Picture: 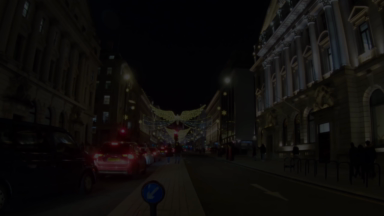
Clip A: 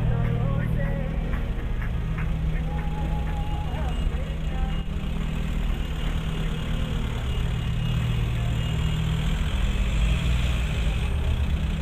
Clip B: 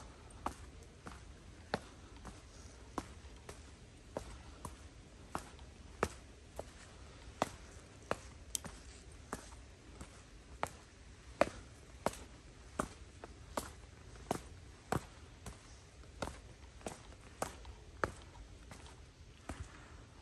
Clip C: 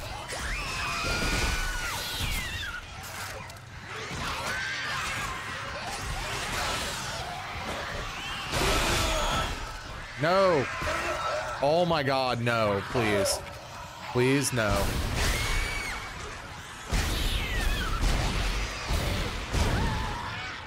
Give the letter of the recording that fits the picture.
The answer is A